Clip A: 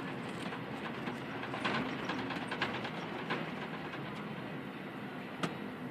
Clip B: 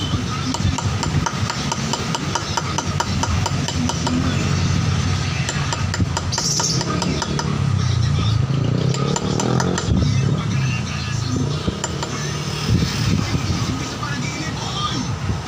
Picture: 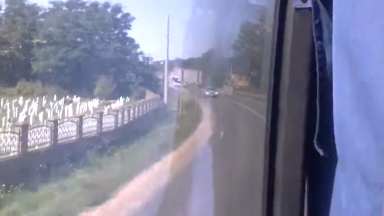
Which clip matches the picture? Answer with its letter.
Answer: A